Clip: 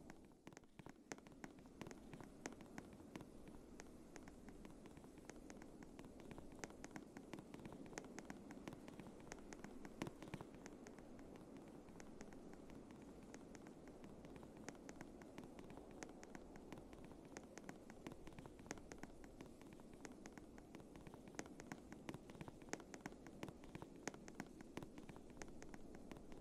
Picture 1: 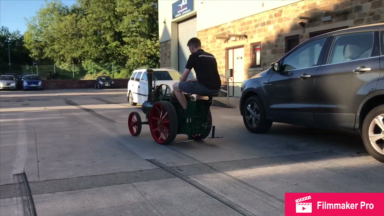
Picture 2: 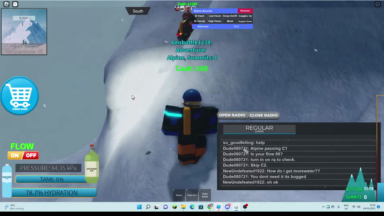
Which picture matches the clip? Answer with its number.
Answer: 2